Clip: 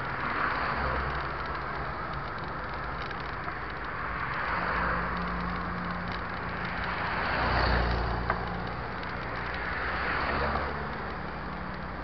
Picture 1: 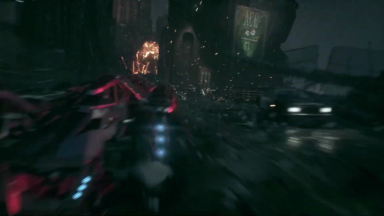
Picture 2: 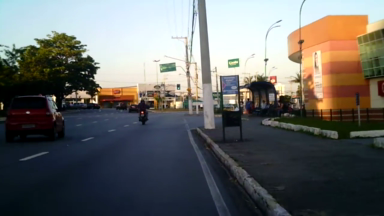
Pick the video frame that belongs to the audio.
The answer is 2